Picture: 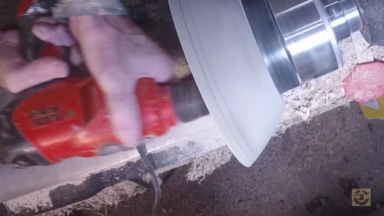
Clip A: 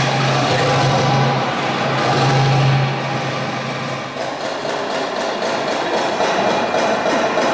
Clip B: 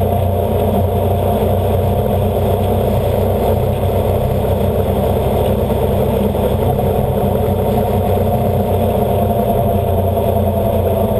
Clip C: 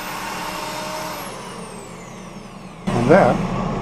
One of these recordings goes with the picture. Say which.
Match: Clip C